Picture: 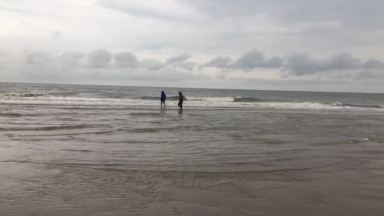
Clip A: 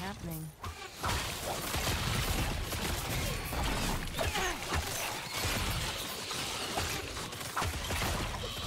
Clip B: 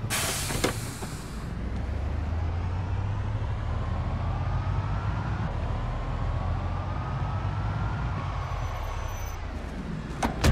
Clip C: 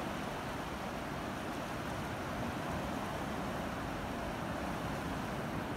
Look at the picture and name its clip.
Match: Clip C